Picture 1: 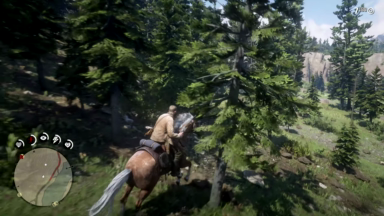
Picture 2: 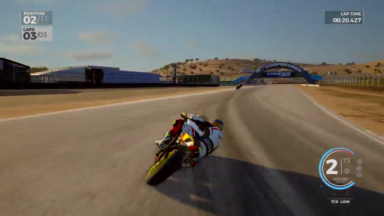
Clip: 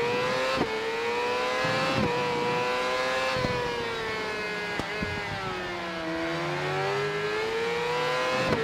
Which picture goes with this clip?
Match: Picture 2